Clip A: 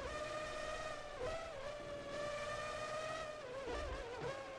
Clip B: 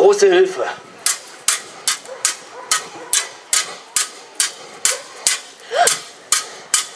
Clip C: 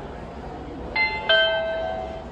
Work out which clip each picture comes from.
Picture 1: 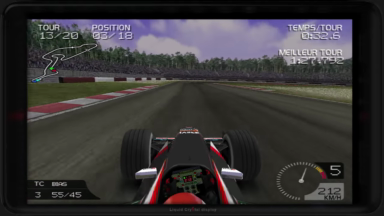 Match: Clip A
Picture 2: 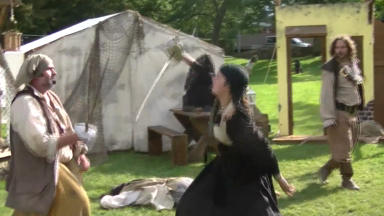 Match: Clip B